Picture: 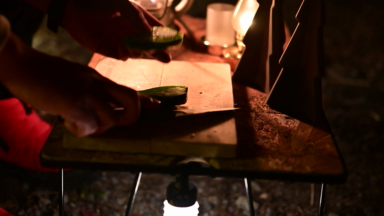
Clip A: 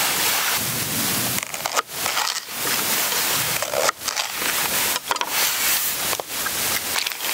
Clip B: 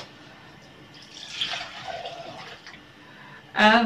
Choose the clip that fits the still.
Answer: A